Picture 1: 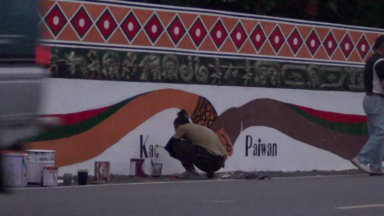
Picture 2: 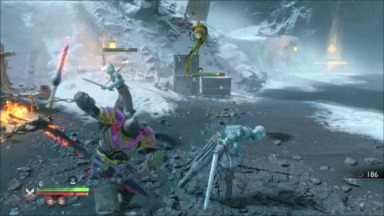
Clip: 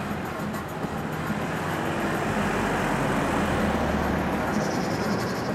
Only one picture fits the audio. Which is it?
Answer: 1